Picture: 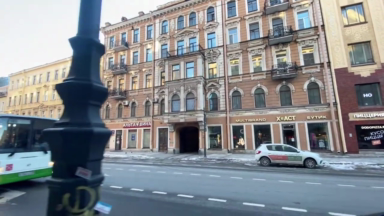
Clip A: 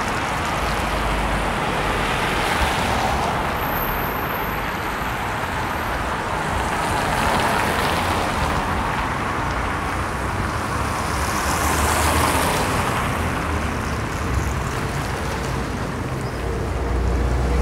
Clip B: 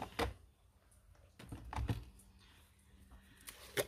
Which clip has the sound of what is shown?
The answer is A